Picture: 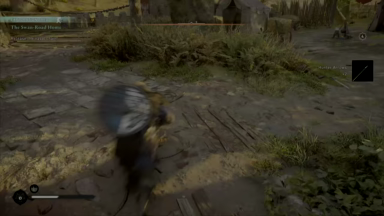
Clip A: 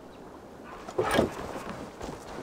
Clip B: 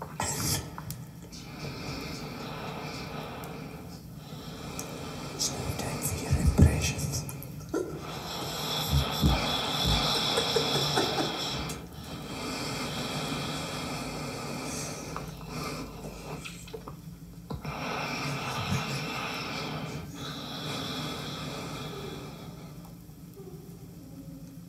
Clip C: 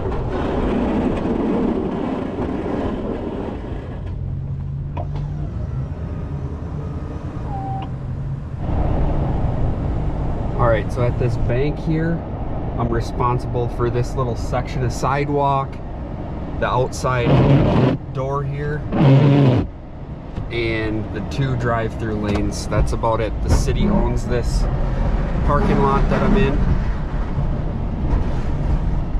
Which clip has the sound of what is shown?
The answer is A